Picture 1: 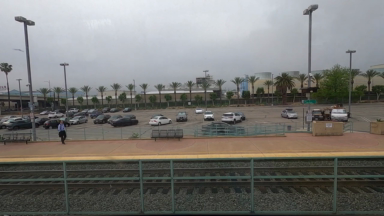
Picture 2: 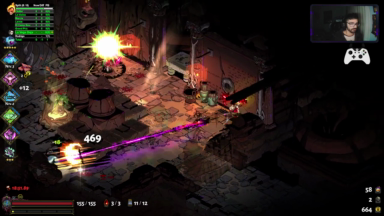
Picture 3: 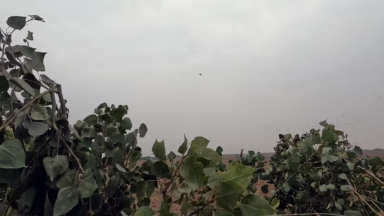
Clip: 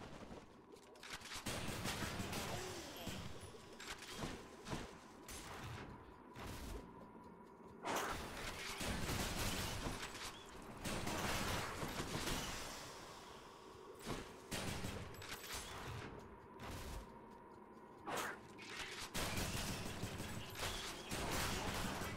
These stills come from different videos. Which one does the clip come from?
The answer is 2